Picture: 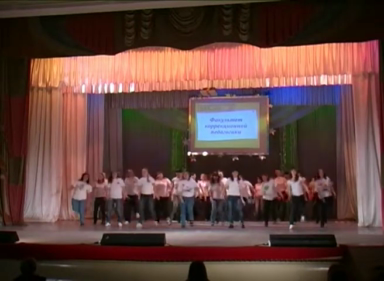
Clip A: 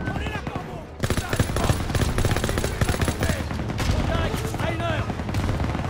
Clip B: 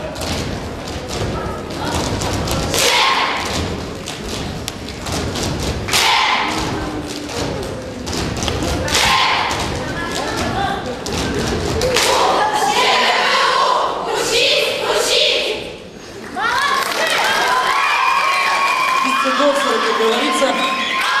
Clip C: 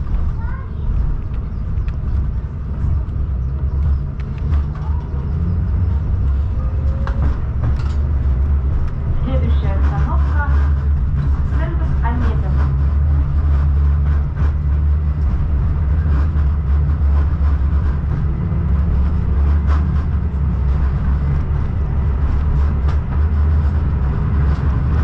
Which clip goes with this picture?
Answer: B